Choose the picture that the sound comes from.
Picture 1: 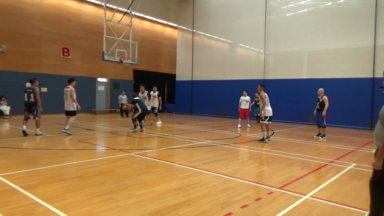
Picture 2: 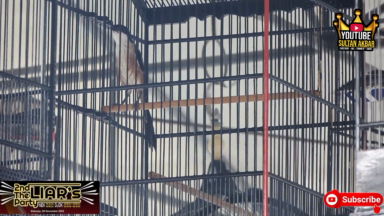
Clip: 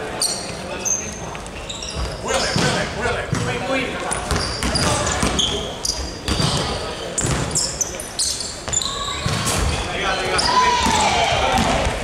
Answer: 1